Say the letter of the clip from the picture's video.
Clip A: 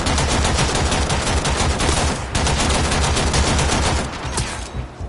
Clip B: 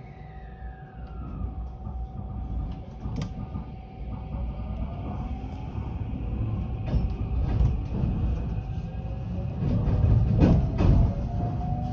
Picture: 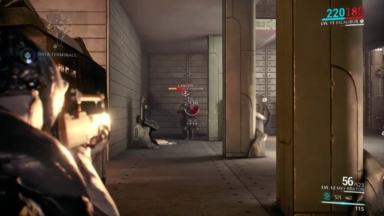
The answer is A